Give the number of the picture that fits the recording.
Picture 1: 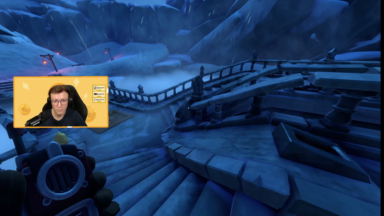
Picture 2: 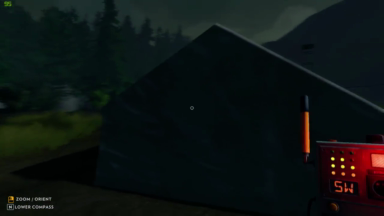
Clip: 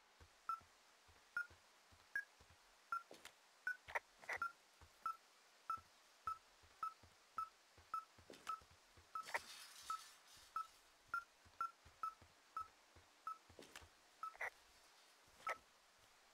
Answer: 2